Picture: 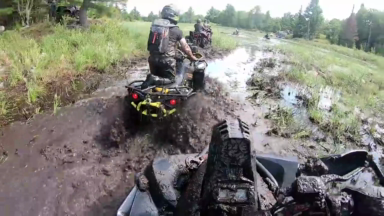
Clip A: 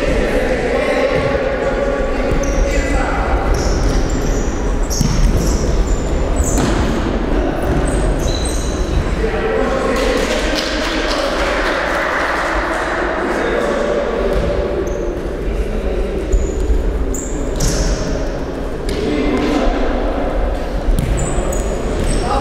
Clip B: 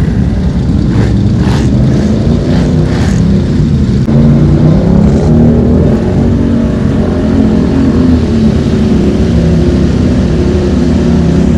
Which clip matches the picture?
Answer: B